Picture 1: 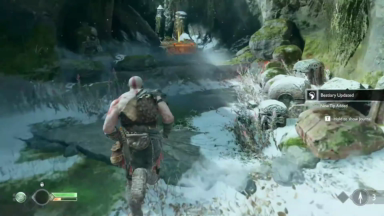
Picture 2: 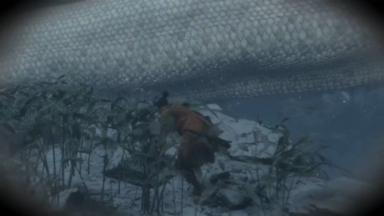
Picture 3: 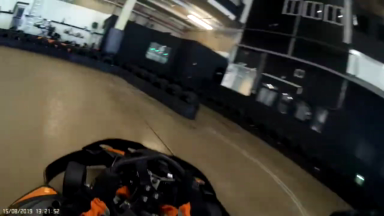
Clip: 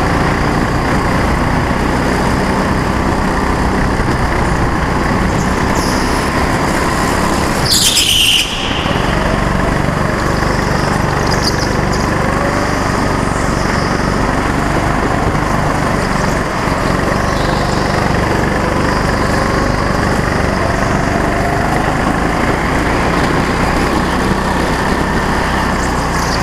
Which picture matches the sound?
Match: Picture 3